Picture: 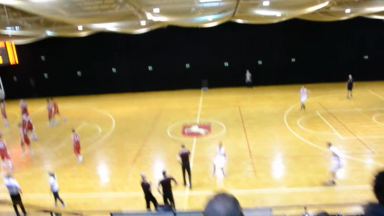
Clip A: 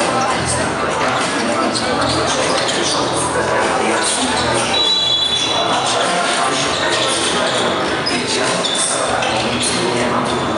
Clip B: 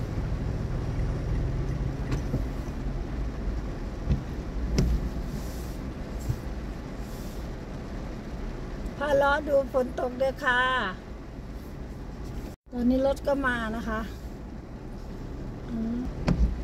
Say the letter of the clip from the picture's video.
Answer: A